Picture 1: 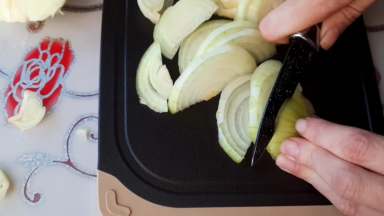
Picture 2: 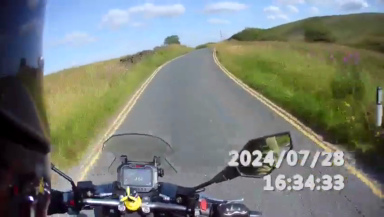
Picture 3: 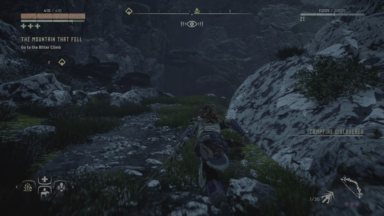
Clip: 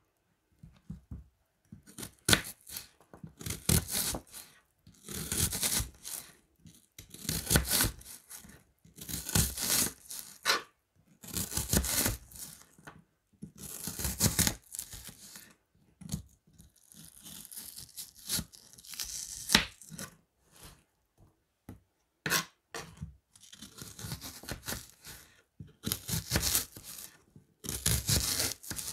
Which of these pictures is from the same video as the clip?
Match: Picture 1